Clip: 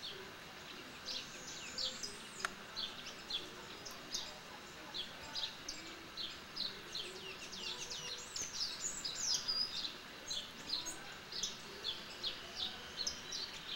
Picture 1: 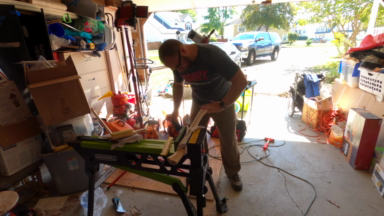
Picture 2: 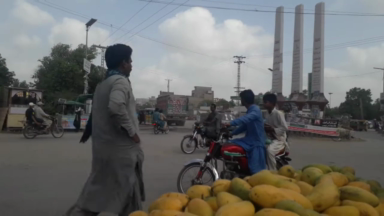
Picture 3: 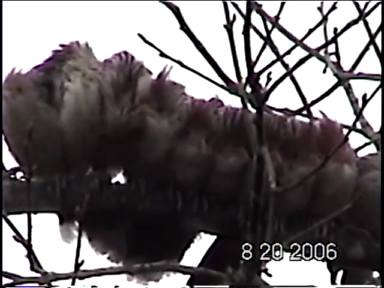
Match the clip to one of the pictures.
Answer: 3